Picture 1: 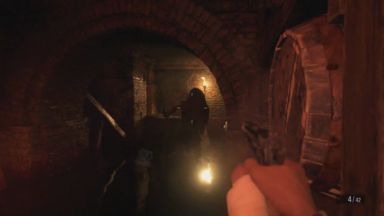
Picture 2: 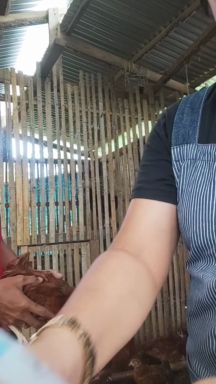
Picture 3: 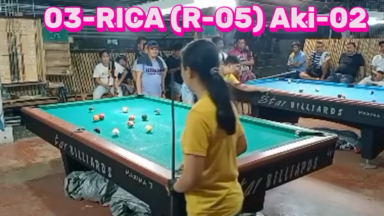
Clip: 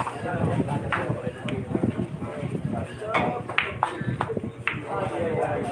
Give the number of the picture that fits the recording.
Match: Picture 3